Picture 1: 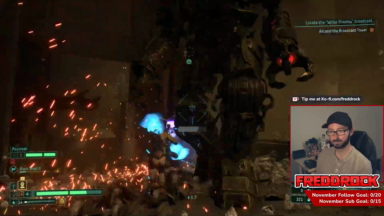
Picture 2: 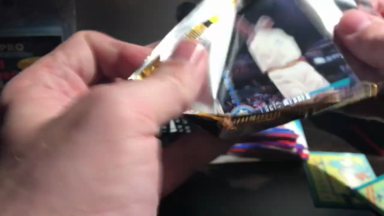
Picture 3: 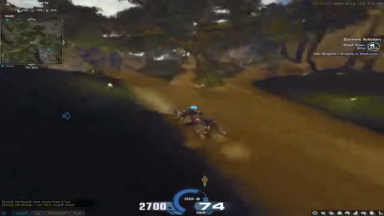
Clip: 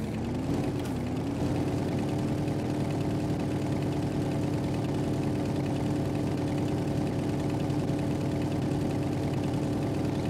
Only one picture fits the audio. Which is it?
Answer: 3